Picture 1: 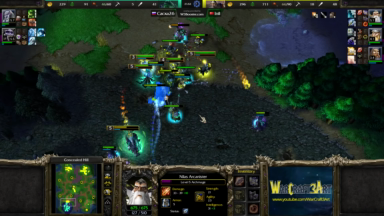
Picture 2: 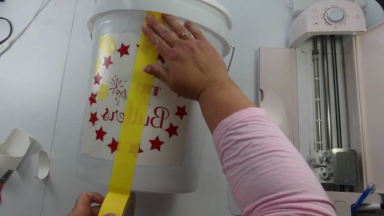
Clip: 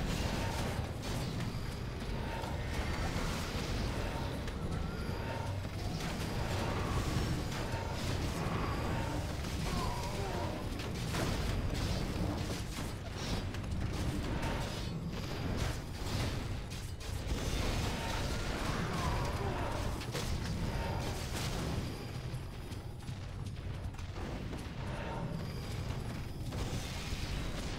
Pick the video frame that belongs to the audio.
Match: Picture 1